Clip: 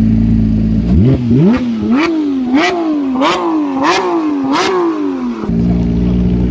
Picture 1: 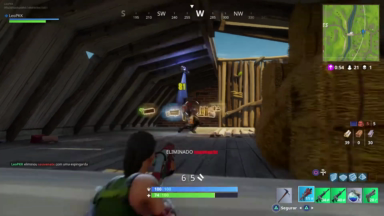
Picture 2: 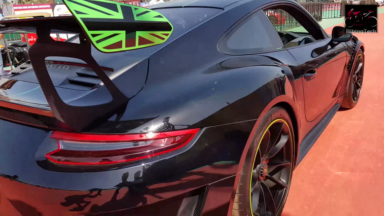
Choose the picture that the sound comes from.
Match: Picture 2